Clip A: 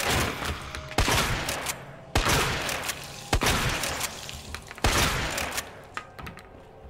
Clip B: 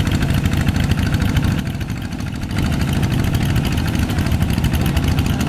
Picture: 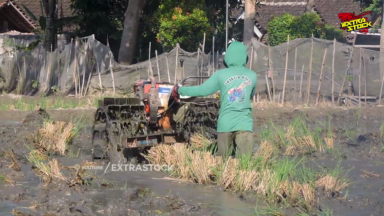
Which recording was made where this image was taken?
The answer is B